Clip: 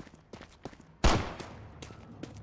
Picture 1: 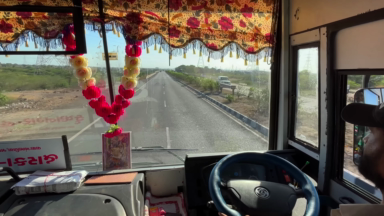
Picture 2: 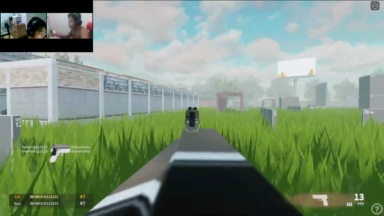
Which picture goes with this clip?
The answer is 2